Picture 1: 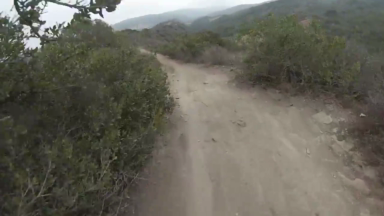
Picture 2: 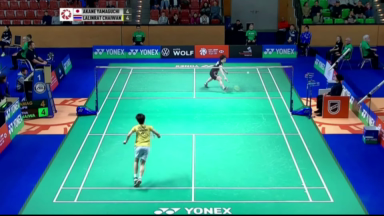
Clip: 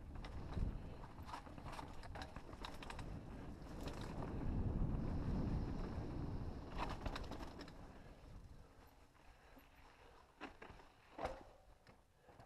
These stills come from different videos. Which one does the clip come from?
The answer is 1